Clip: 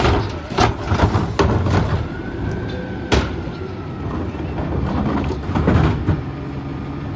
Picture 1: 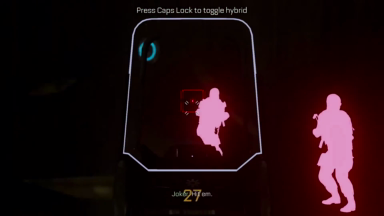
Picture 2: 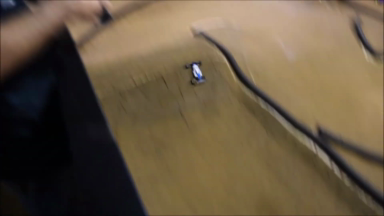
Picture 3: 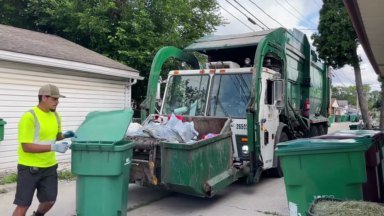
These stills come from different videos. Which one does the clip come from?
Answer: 3